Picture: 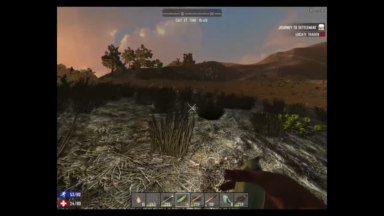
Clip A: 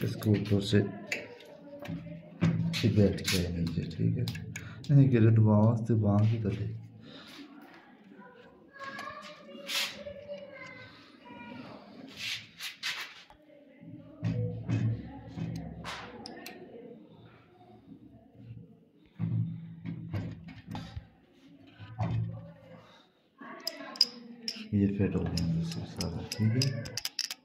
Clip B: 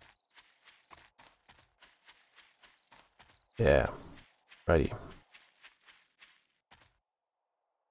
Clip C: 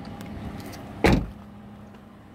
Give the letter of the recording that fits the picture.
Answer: B